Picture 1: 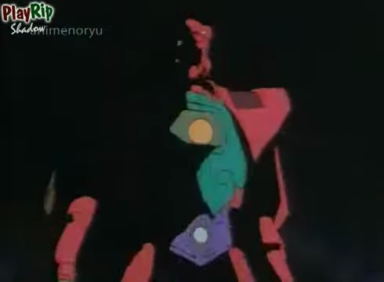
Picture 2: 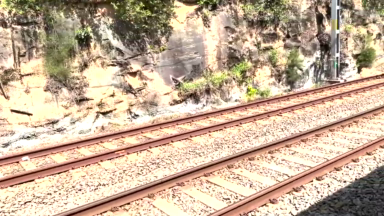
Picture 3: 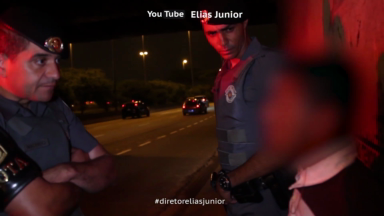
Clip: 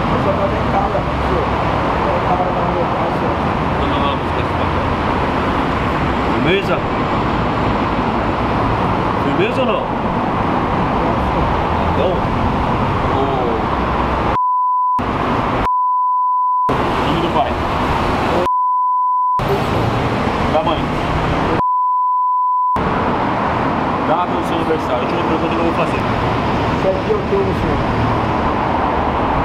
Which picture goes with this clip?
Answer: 3